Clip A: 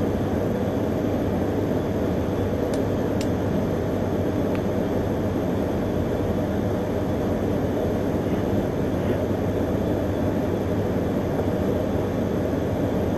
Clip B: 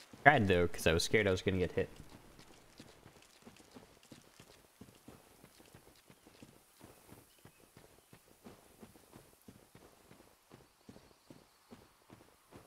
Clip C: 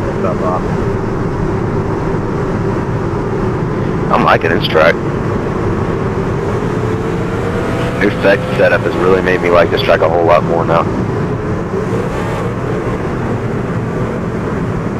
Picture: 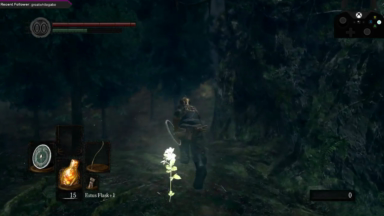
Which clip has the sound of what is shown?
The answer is B